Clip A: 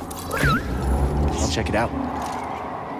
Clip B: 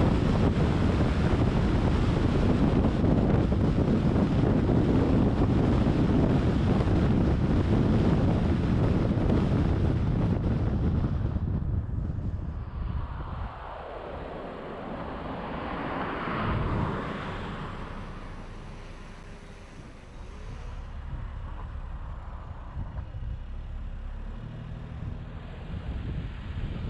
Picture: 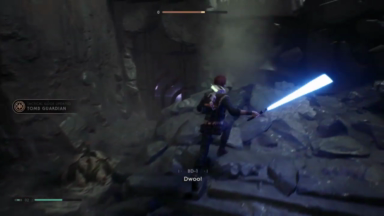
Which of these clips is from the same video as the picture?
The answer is A